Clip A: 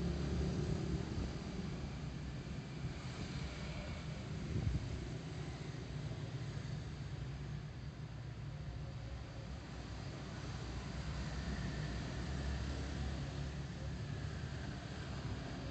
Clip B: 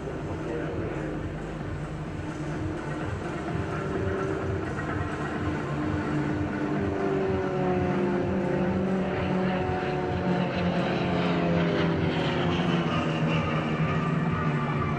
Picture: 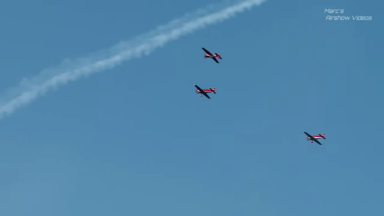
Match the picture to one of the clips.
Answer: B